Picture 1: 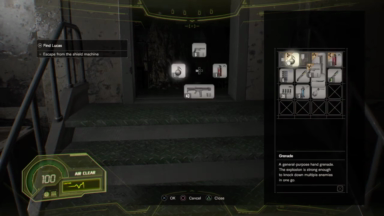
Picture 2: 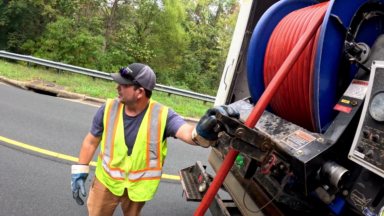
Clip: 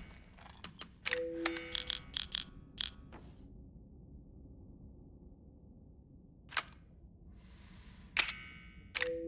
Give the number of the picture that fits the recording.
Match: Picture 1